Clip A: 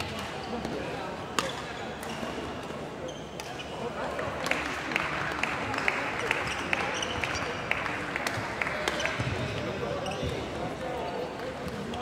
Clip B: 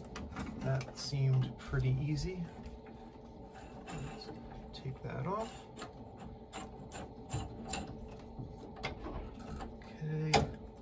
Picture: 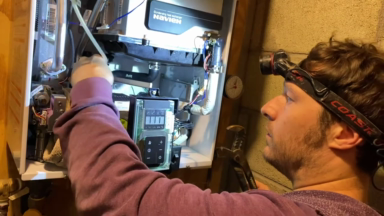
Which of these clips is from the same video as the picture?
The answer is B